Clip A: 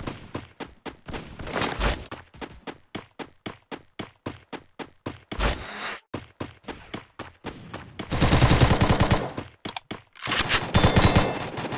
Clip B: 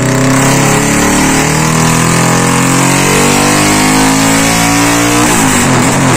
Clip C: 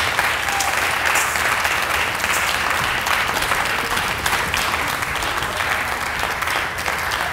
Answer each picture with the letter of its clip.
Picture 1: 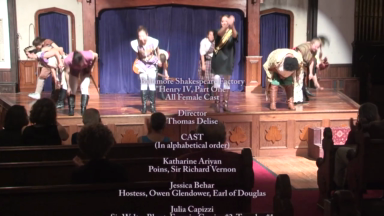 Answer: C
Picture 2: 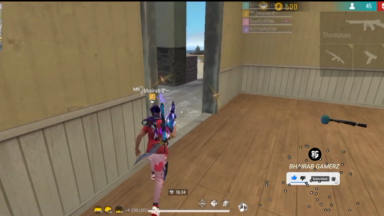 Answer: A